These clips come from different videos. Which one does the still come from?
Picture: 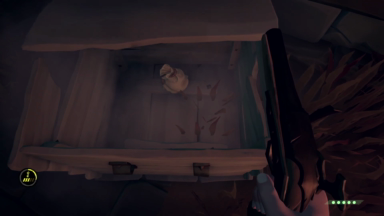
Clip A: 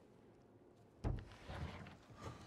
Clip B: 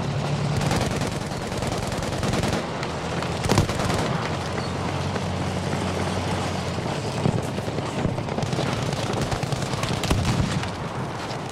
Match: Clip A